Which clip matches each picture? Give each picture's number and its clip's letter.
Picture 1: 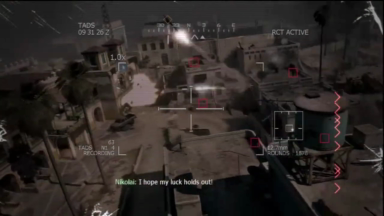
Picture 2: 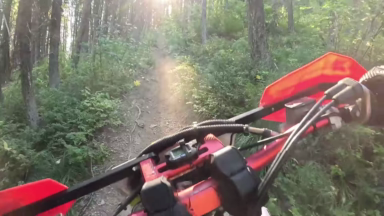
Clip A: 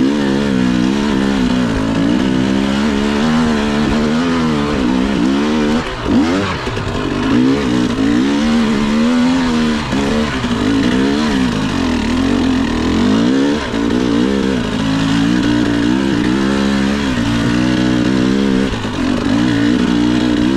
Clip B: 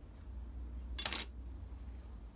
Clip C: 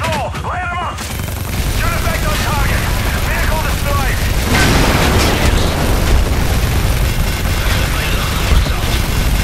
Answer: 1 C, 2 A